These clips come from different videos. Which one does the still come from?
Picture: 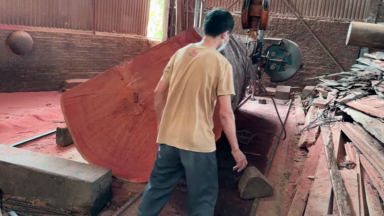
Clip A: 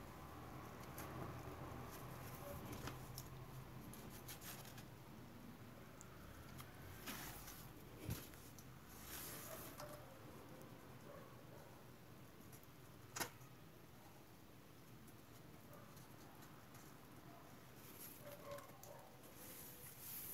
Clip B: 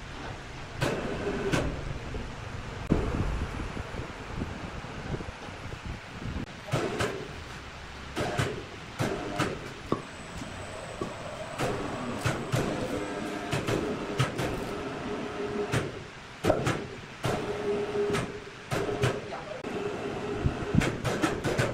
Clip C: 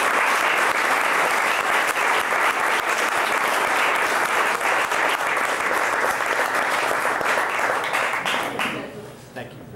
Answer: B